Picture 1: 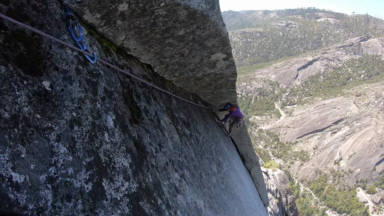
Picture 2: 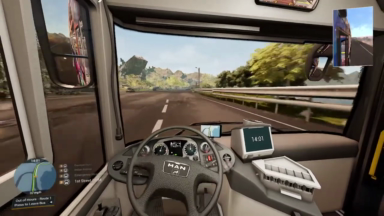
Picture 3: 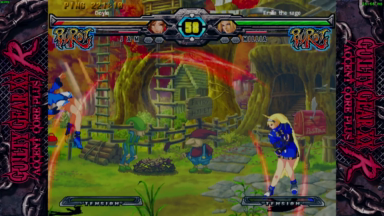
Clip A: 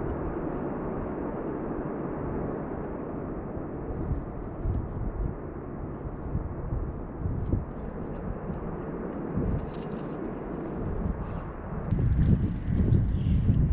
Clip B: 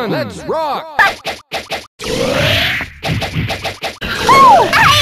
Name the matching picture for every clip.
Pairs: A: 1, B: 3